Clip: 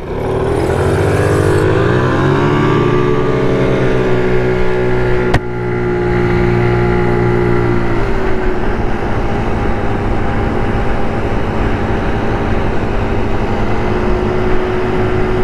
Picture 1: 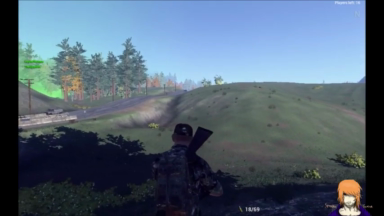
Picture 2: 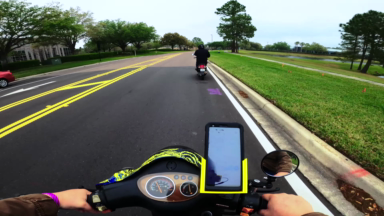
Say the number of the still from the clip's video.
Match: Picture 2